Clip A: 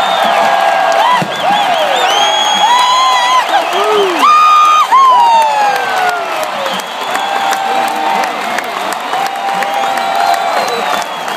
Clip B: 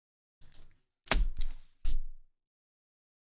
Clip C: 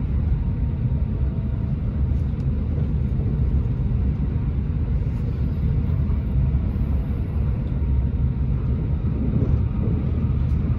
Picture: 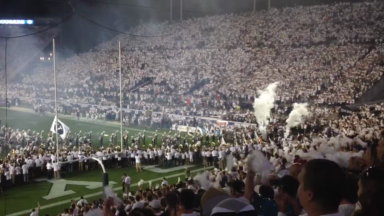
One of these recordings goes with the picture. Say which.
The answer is A